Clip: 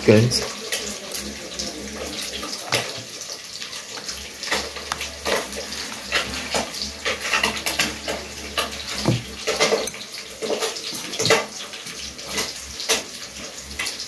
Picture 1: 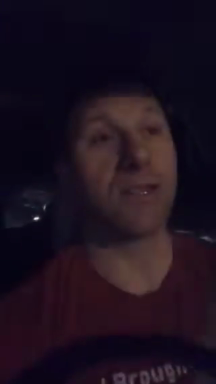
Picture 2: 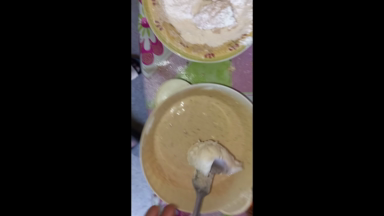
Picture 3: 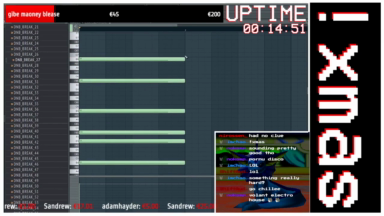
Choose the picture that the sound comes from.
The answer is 2